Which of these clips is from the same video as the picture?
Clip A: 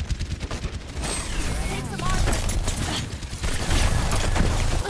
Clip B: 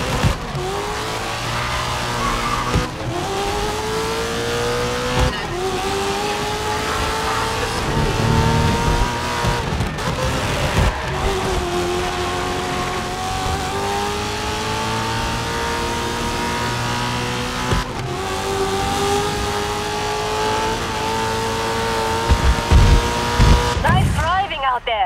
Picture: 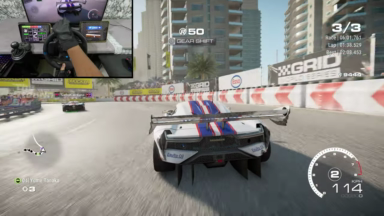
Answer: B